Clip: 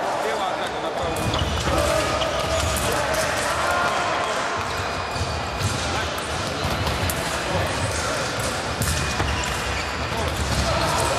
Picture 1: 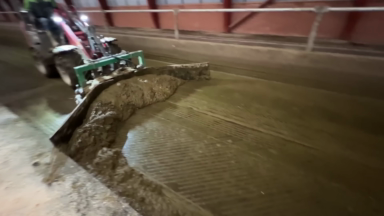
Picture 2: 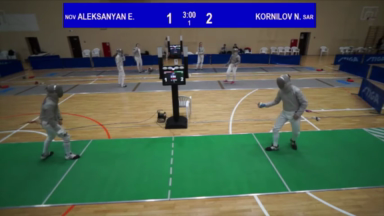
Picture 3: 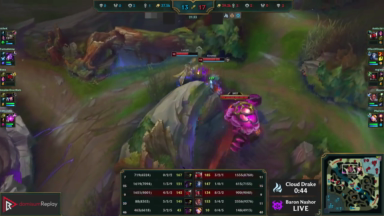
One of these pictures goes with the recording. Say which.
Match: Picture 2